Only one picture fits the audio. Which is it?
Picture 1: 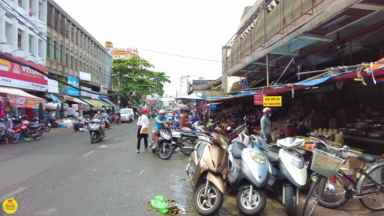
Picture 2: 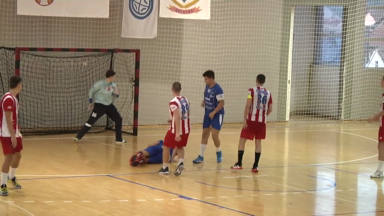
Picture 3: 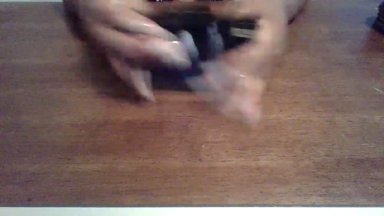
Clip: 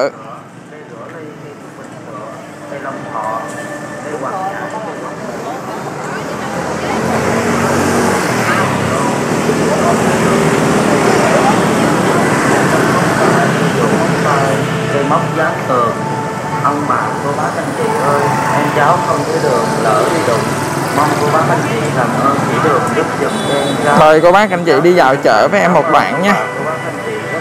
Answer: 1